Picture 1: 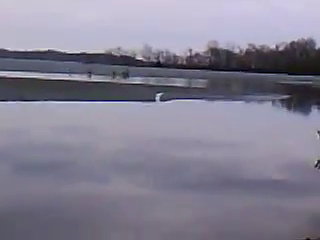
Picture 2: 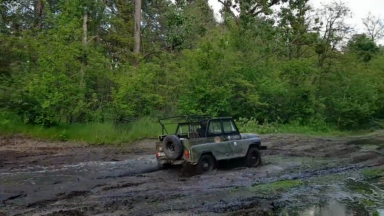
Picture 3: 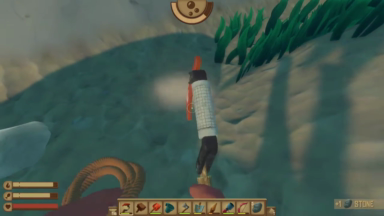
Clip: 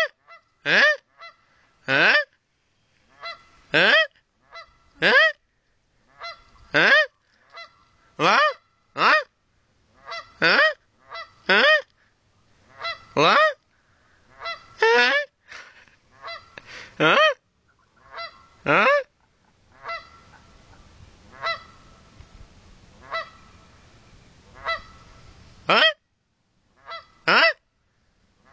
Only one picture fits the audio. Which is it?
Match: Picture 1